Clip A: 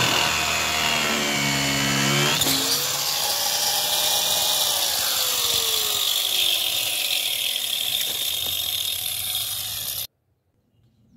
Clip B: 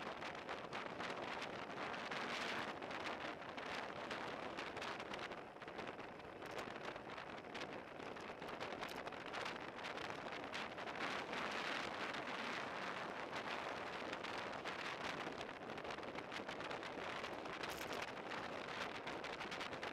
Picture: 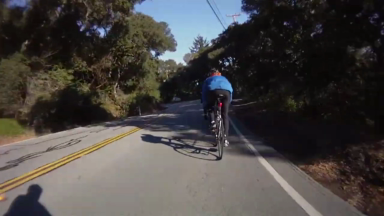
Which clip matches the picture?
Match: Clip B